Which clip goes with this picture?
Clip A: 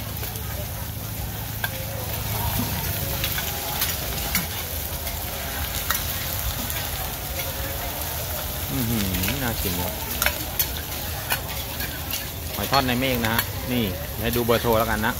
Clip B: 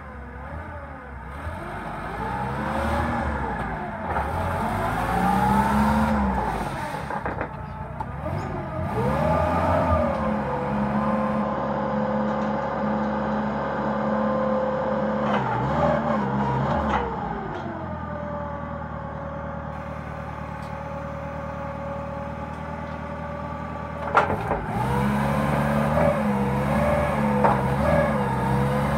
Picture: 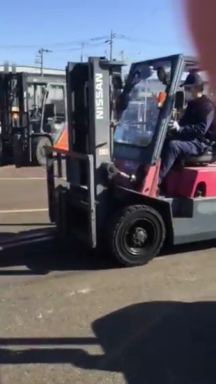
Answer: B